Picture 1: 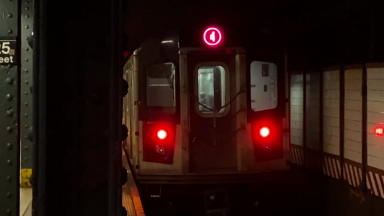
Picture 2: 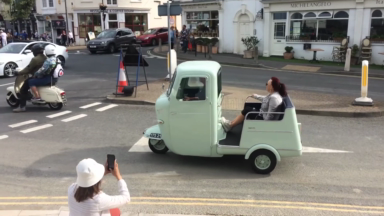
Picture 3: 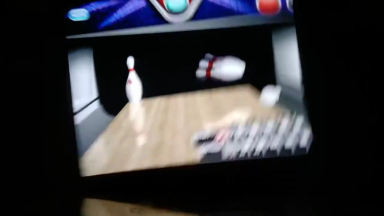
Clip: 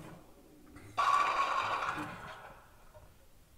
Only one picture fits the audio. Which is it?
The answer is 3